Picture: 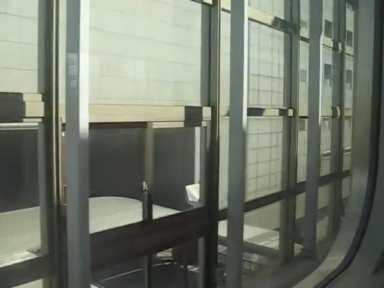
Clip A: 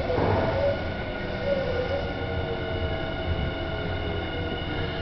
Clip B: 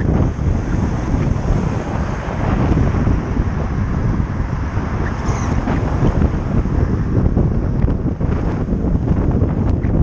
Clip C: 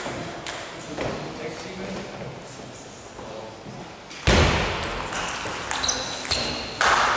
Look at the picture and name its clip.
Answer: A